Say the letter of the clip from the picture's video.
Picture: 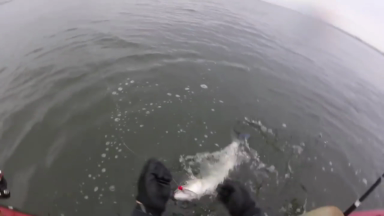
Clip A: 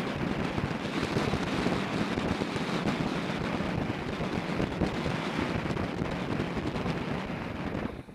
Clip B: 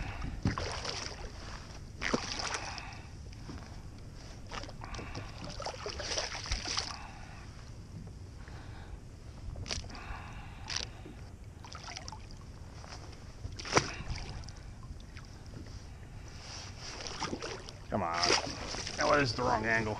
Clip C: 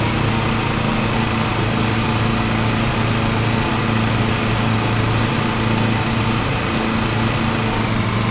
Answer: B